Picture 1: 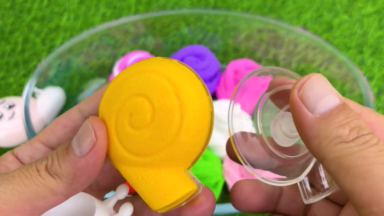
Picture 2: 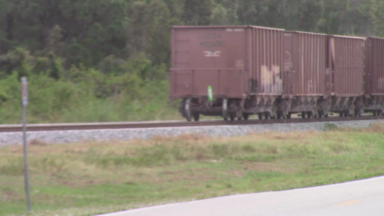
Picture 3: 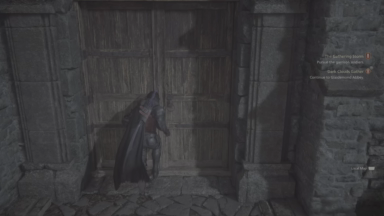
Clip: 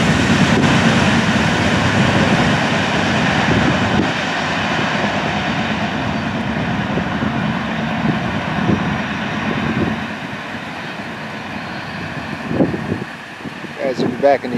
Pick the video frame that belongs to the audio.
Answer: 2